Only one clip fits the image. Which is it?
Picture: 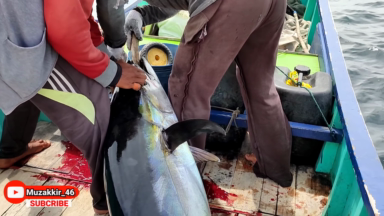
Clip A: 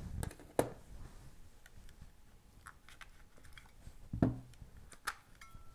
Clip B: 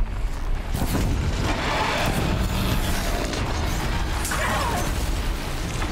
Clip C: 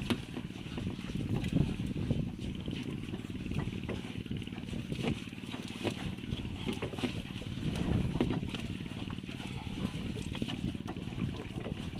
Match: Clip C